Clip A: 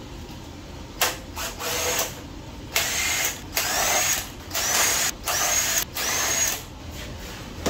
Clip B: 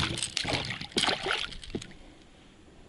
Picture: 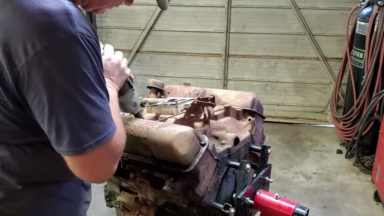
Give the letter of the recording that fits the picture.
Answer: A